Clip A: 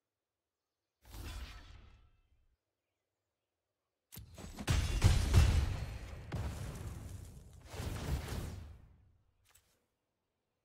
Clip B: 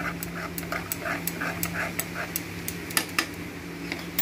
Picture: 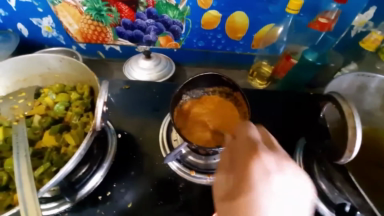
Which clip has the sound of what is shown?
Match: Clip B